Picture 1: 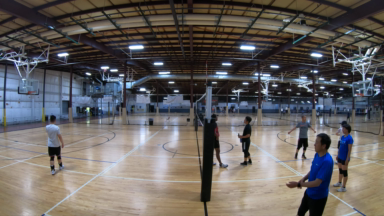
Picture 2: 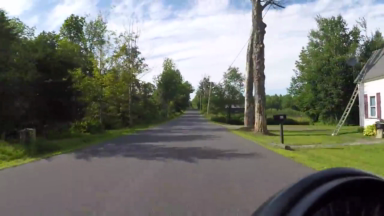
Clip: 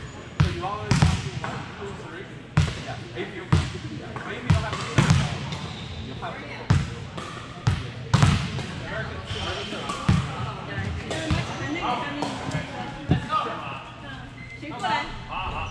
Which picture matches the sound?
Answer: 1